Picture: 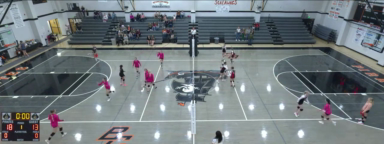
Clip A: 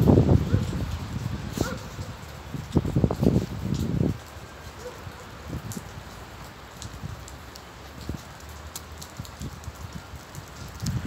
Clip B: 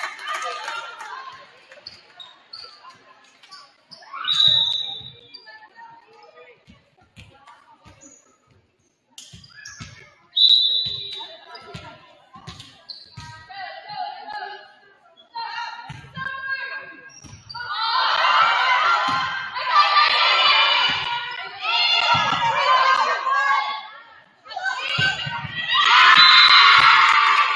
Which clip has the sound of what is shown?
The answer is B